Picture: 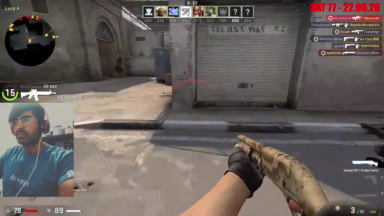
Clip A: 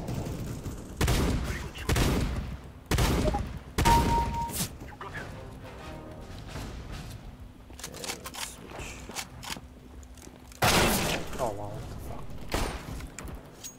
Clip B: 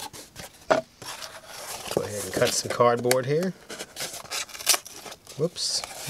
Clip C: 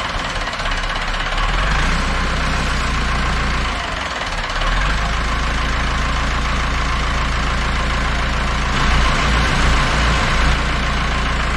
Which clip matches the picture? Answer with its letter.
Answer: A